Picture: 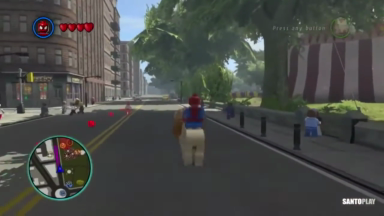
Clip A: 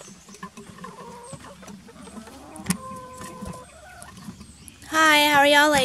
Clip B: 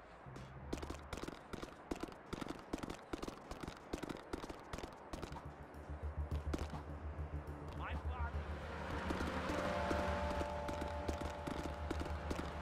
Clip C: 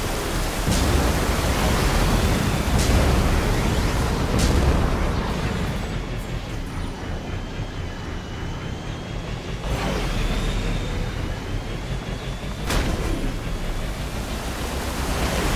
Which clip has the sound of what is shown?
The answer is B